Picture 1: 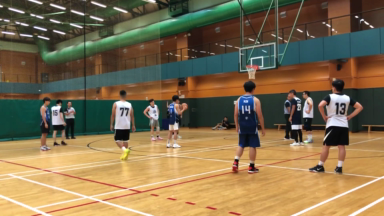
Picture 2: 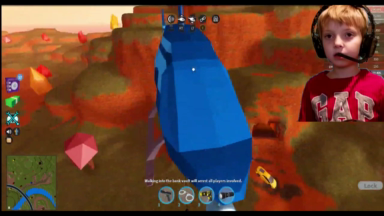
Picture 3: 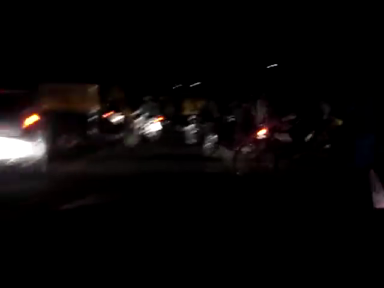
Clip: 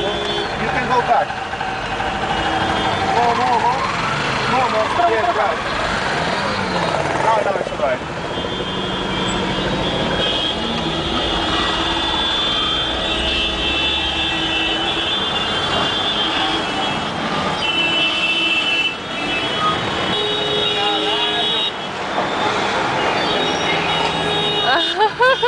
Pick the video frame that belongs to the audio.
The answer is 3